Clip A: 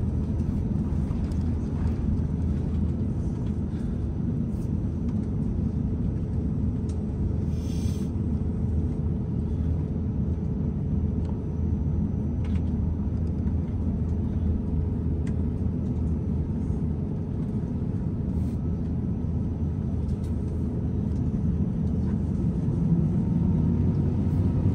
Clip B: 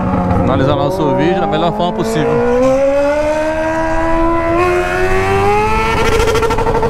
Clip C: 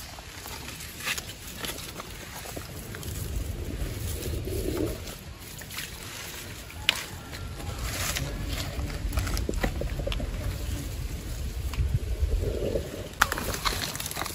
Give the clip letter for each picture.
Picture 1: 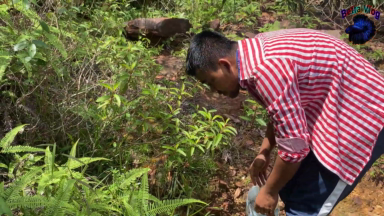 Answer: C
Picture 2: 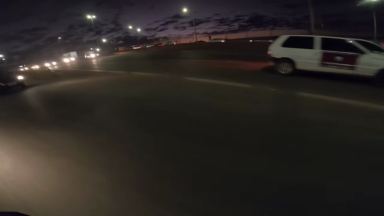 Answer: B